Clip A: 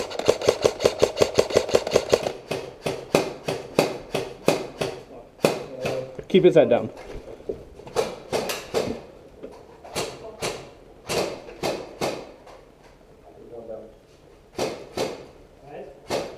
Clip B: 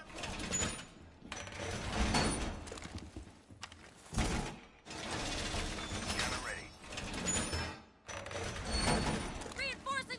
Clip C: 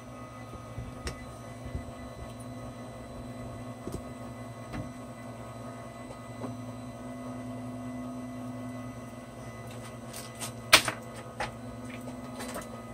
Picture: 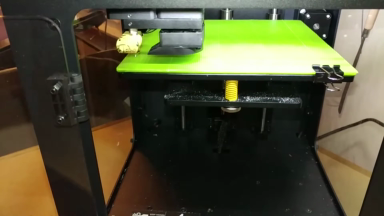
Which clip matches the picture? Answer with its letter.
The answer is C